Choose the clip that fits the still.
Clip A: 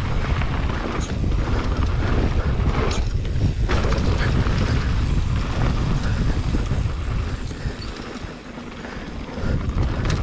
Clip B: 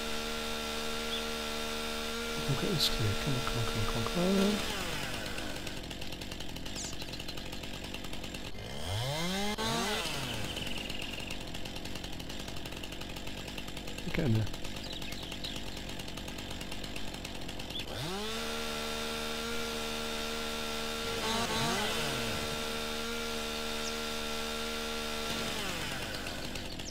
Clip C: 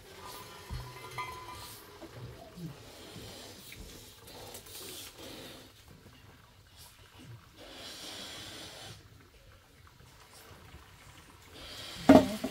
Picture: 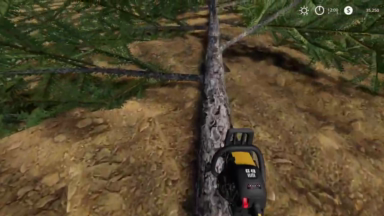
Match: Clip B